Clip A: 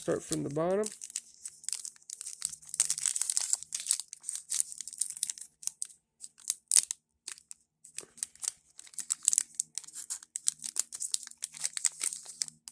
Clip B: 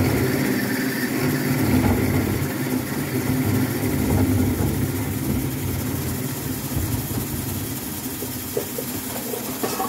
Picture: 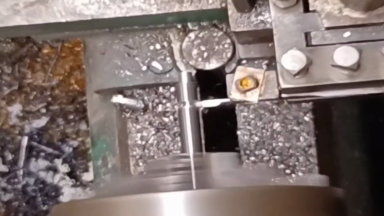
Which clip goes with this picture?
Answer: B